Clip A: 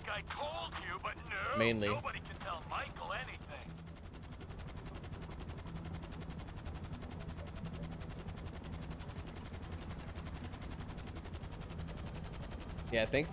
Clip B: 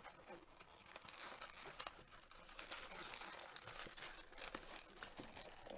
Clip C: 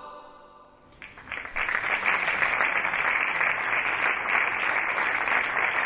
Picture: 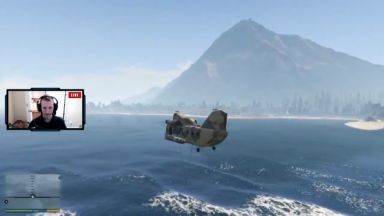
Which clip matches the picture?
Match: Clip A